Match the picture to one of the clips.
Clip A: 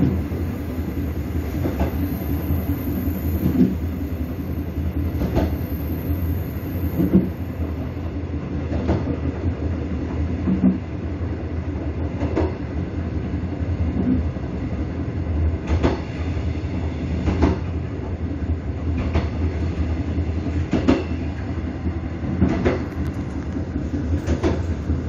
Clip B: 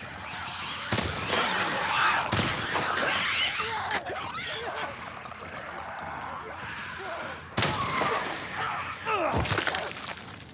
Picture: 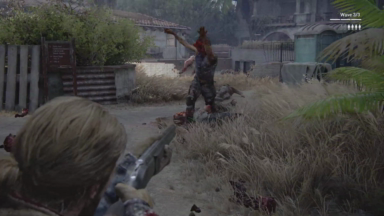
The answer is B